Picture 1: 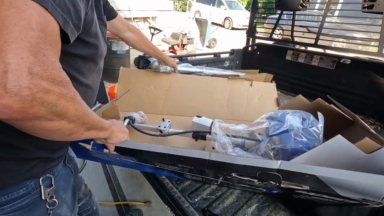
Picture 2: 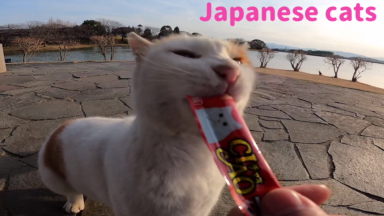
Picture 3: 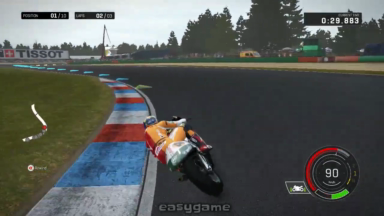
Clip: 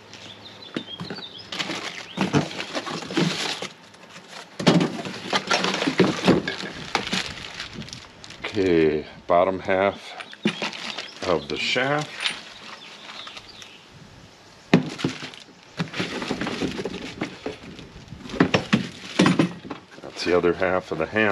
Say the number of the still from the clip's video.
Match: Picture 1